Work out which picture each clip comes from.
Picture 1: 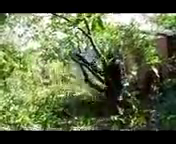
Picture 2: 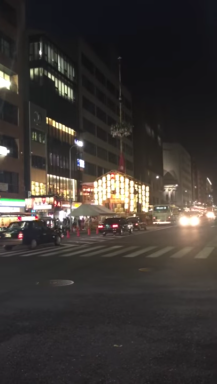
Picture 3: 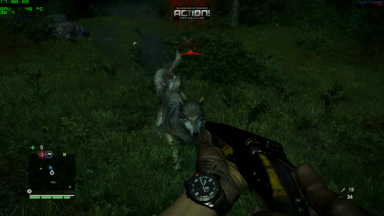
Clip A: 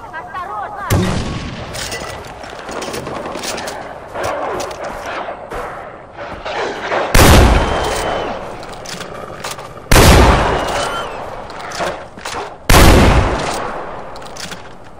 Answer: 3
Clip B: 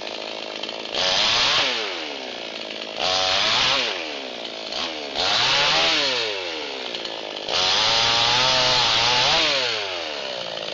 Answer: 1